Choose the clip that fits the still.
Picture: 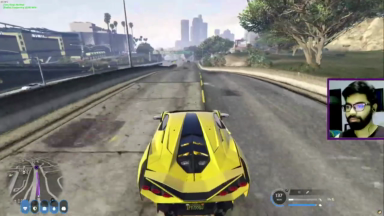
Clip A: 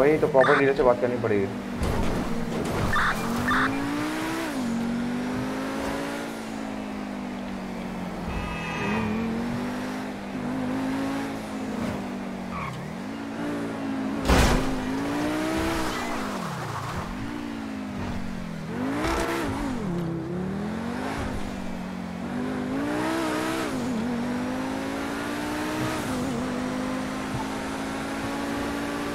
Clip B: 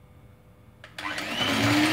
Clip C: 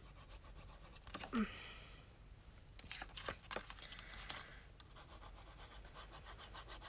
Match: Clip A